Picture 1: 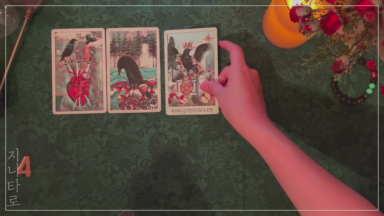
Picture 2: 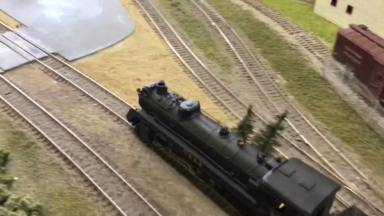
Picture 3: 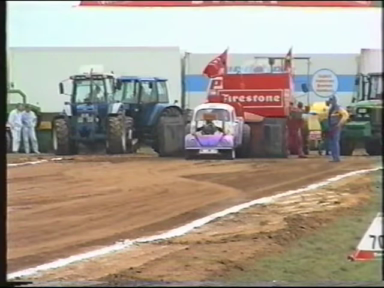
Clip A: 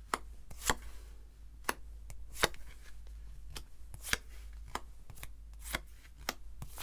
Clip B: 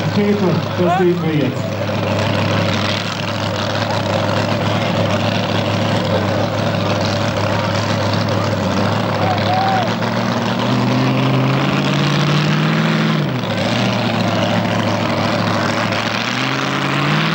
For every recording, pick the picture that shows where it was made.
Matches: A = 1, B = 3